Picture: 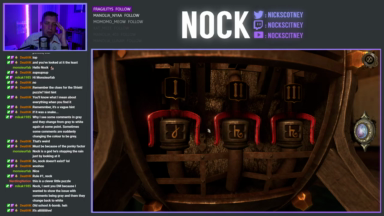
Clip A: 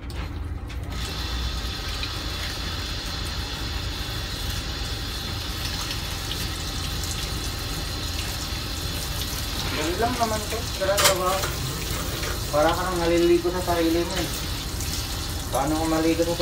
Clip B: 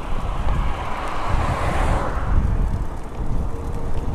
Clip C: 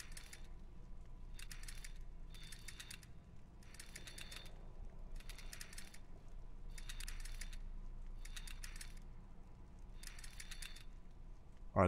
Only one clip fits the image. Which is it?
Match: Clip C